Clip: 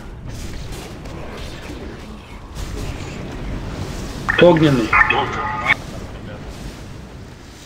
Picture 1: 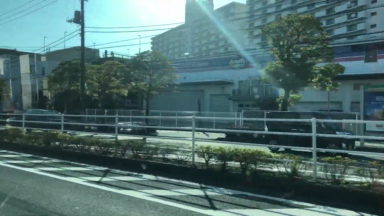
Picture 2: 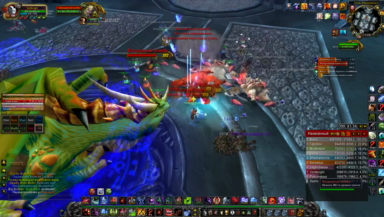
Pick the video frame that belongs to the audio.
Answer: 2